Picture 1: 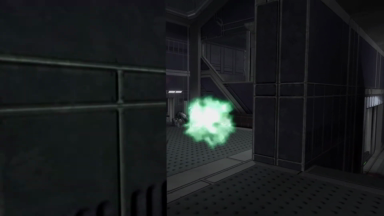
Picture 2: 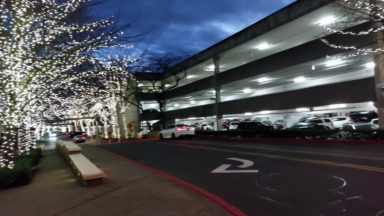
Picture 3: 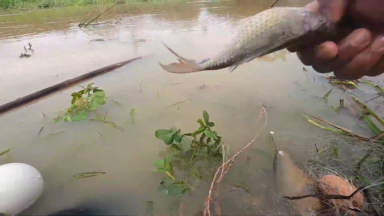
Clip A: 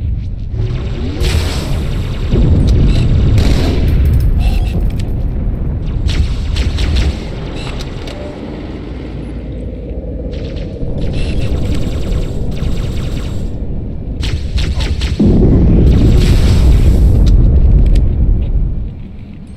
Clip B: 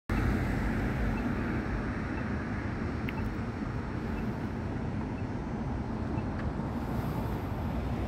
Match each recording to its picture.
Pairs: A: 1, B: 2